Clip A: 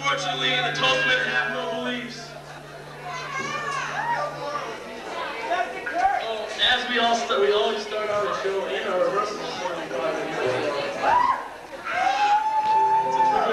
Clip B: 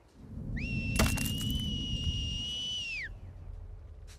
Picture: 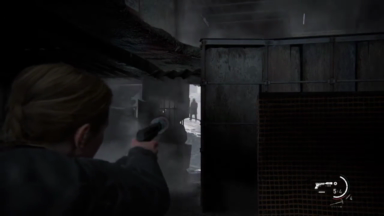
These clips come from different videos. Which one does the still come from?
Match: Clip B